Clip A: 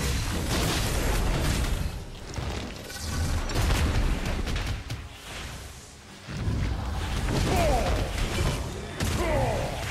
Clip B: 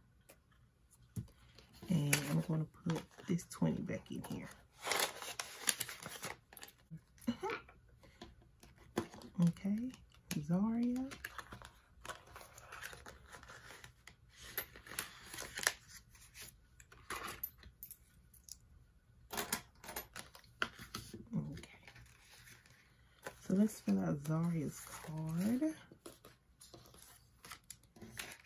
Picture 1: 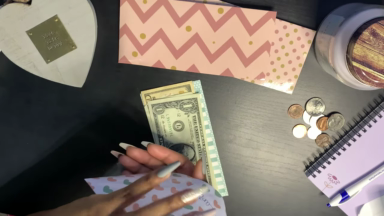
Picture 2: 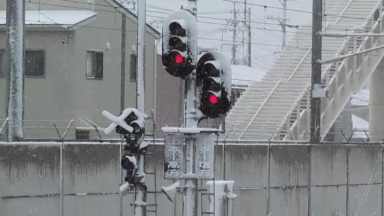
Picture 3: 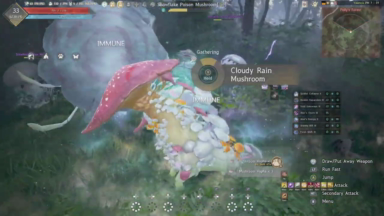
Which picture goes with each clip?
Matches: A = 3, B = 1